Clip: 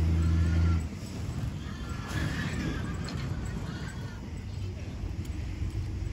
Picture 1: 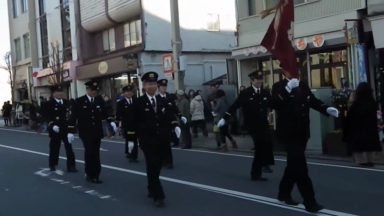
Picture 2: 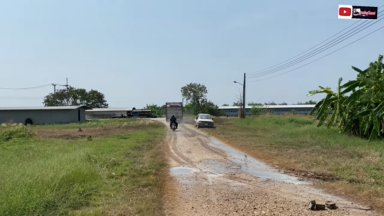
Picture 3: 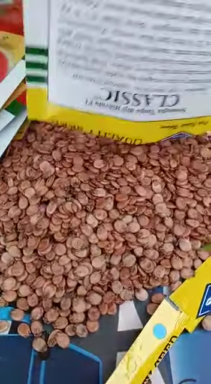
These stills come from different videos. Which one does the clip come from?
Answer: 2